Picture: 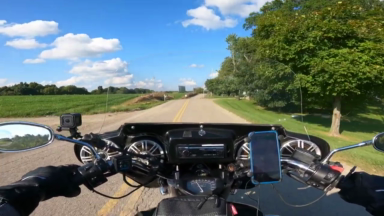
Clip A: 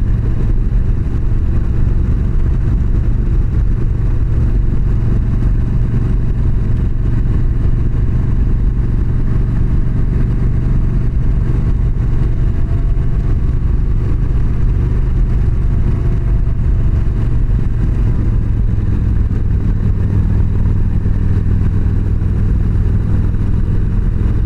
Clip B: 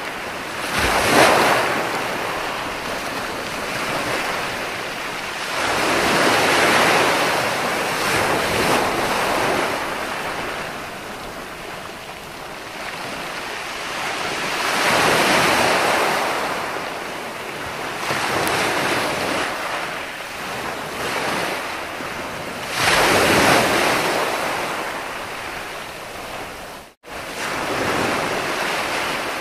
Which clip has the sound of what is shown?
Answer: A